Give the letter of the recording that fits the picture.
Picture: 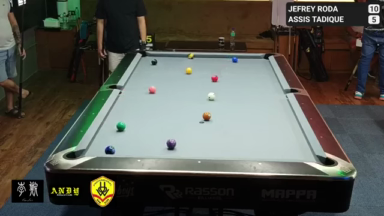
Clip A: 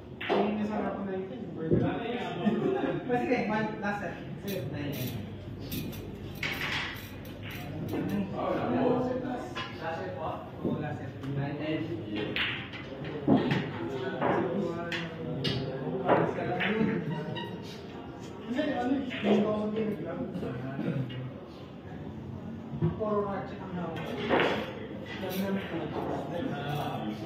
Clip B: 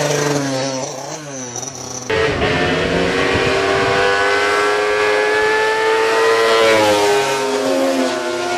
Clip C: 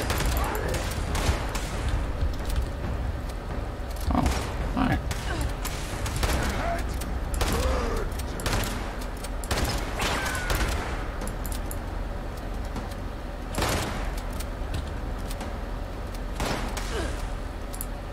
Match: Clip A